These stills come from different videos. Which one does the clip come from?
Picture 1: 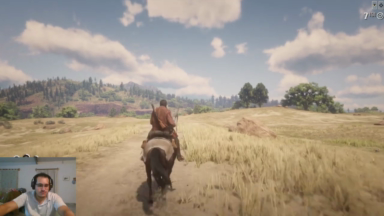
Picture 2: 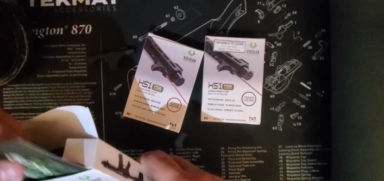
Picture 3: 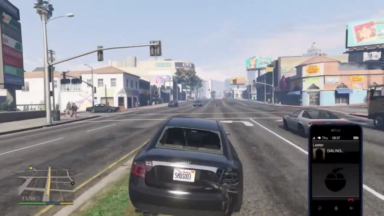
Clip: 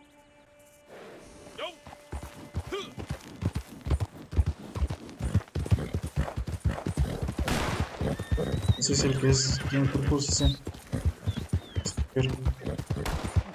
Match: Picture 1